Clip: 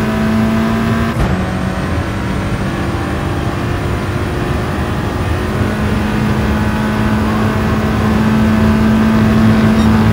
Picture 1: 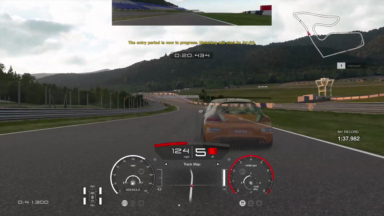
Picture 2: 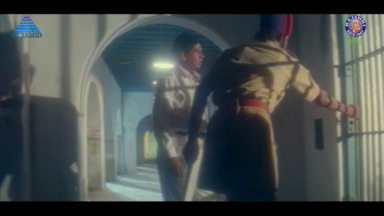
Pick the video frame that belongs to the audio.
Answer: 1